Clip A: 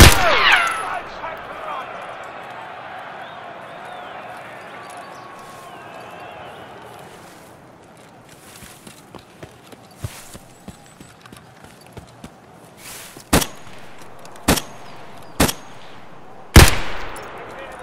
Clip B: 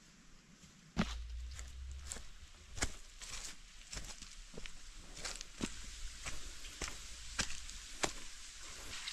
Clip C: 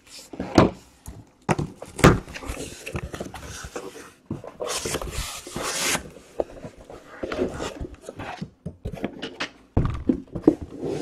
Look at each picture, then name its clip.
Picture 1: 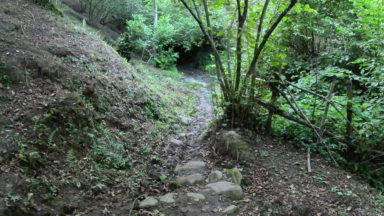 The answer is B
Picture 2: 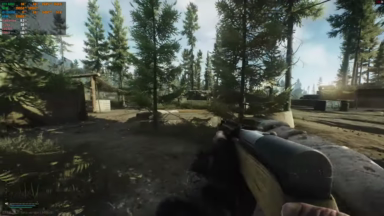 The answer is A